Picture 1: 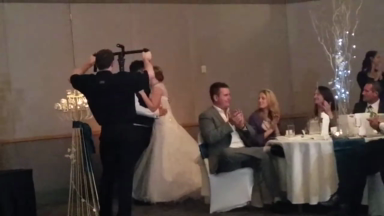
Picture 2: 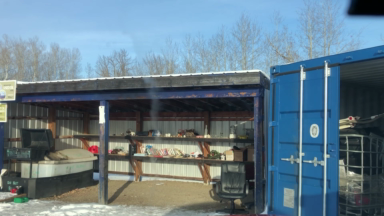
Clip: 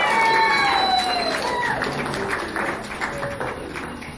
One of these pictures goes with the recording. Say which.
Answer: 1